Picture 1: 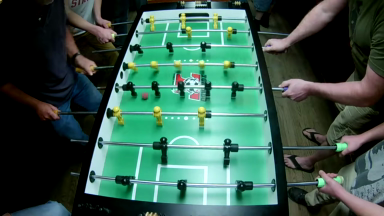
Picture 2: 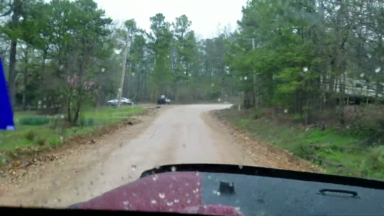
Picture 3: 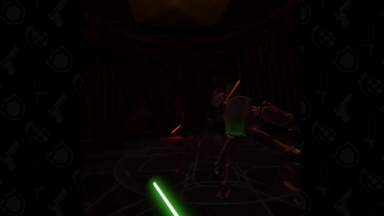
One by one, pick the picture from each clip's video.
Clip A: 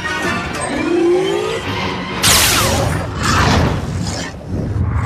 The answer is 3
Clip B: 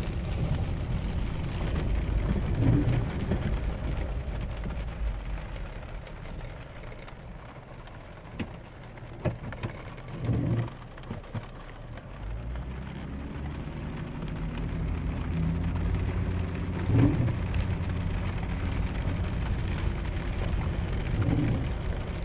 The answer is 2